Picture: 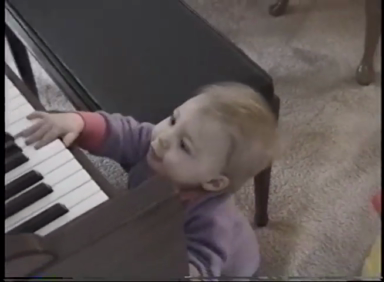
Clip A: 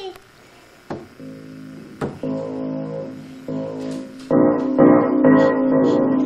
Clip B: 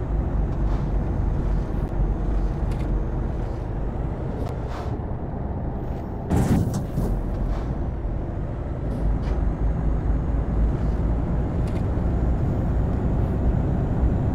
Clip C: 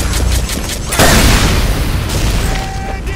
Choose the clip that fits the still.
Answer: A